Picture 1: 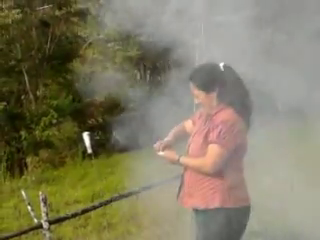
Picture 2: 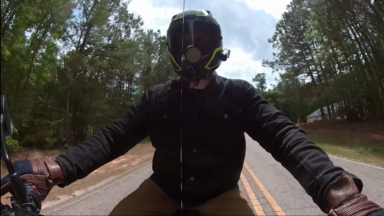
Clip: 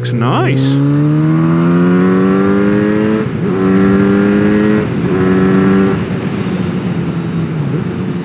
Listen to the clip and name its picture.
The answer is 2